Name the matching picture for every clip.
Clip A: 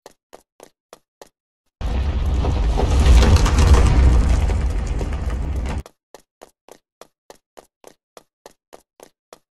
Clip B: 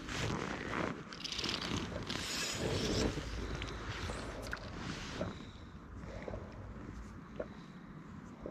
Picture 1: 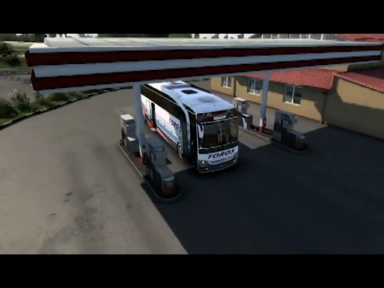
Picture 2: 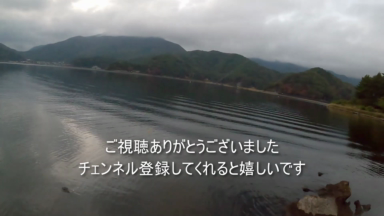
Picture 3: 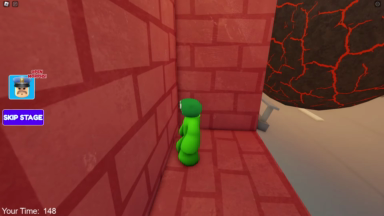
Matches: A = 3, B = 2